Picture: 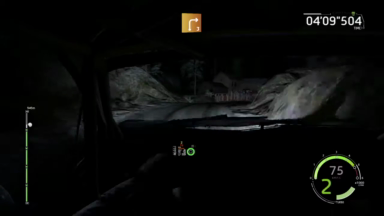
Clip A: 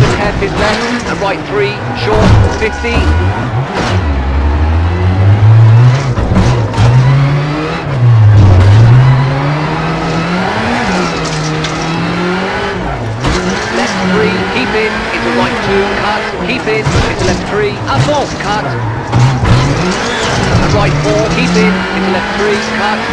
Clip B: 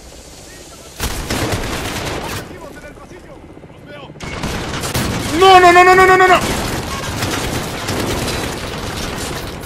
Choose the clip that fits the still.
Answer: A